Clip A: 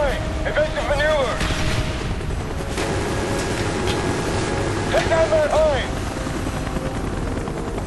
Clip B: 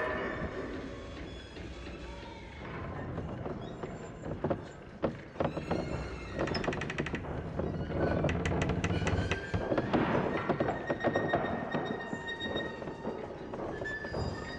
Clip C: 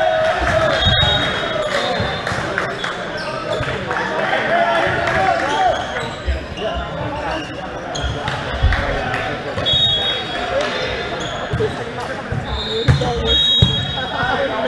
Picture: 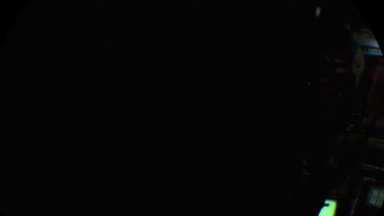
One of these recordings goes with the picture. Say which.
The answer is B